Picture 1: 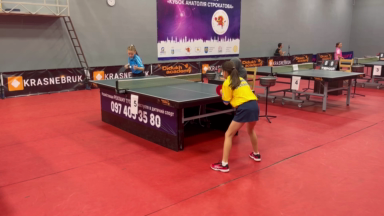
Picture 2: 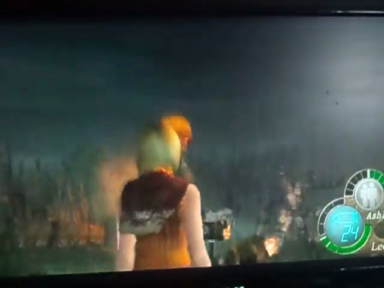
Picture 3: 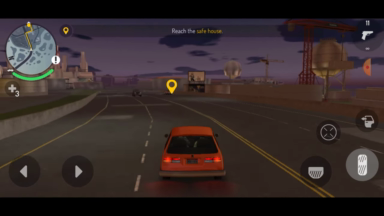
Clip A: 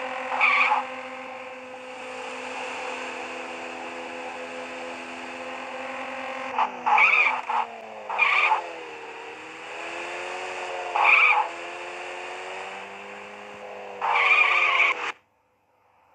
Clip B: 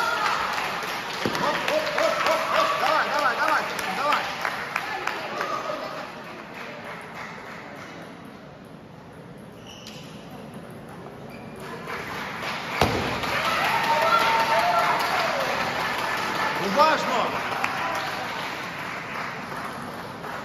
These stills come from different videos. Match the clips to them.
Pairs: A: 3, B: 1